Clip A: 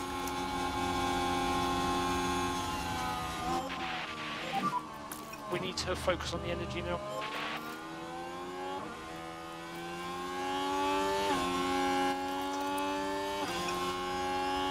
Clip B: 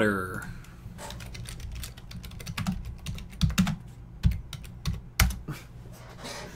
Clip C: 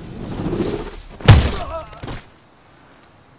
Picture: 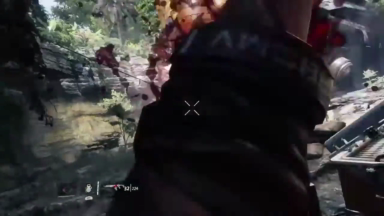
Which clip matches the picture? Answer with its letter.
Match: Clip C